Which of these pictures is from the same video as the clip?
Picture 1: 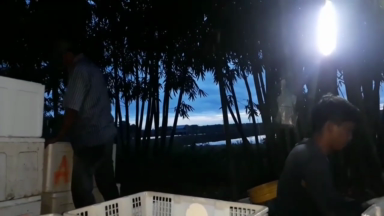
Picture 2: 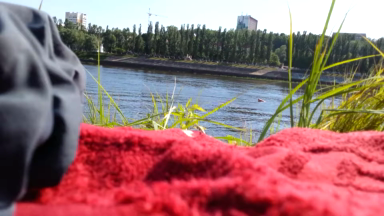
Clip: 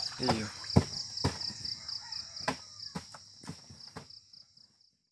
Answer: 1